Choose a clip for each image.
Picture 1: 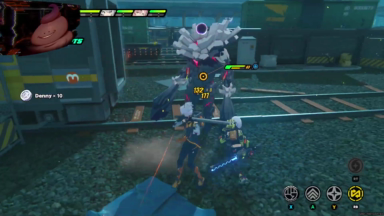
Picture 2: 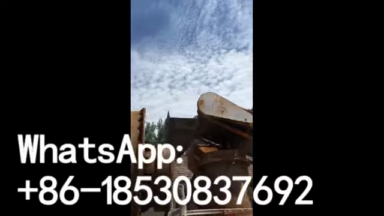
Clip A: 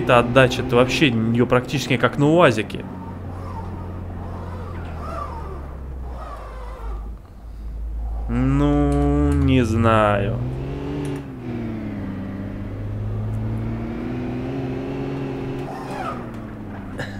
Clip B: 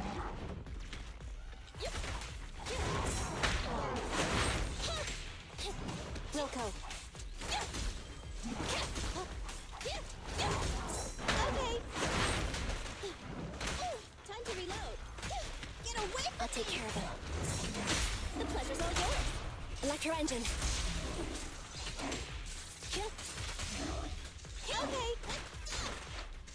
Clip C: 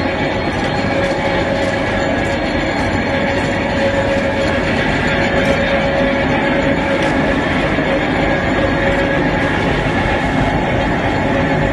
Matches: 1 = B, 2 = C